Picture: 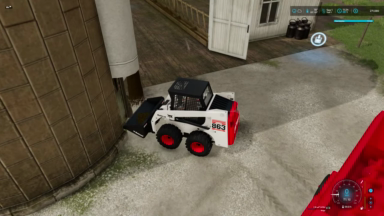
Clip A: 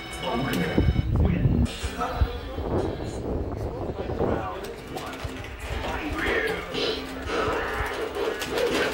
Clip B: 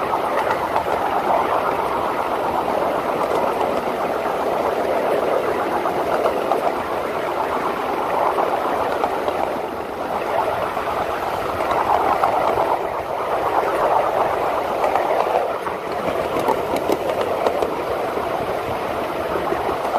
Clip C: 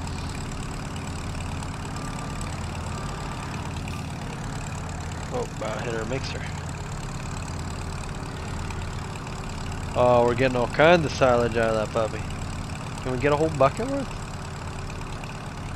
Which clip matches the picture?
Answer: C